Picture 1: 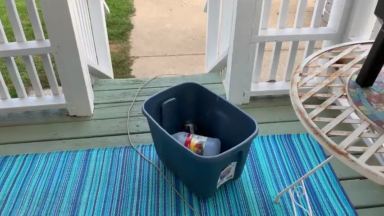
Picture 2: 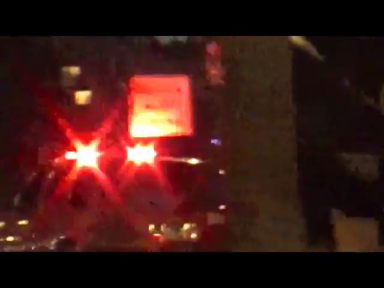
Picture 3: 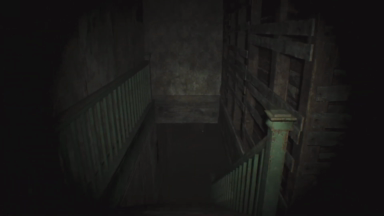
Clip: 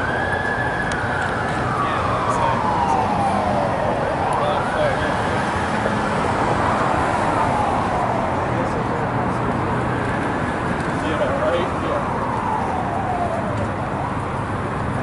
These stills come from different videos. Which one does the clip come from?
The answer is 2